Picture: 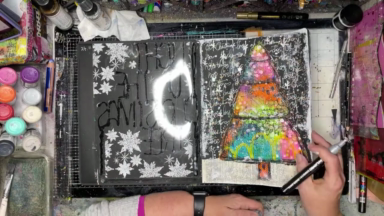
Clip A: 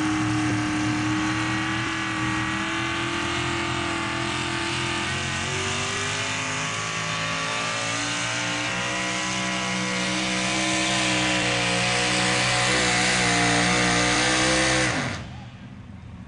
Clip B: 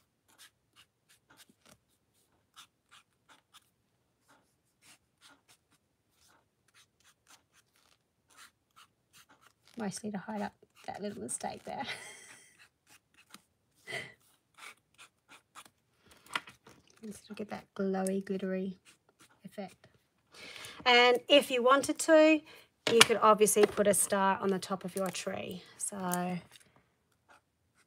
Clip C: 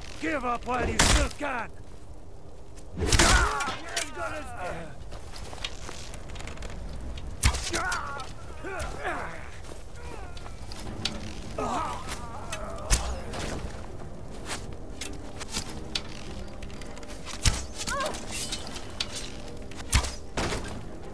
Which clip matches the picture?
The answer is B